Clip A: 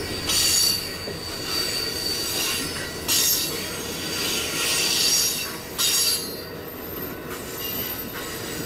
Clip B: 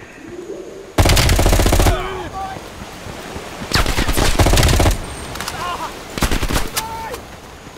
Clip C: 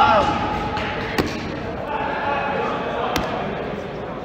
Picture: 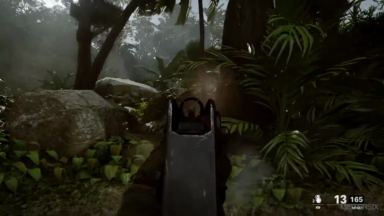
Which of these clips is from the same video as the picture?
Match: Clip B